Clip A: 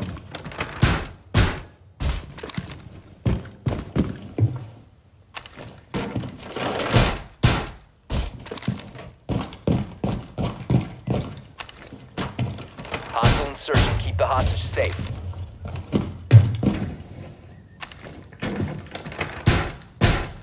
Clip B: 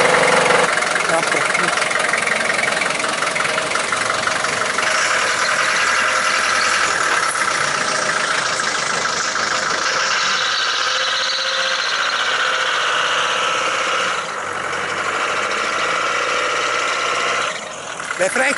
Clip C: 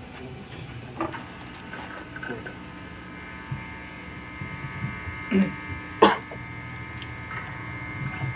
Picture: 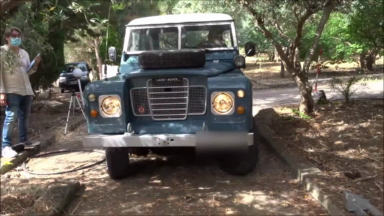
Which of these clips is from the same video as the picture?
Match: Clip B